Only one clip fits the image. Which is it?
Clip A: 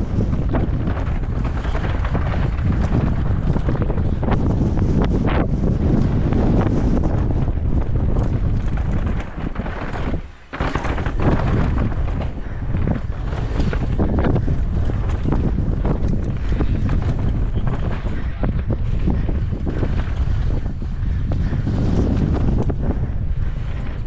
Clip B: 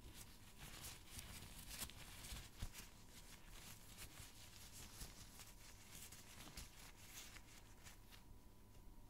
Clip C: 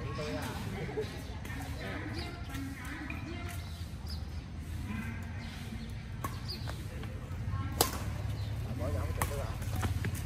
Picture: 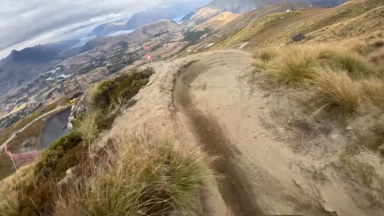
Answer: A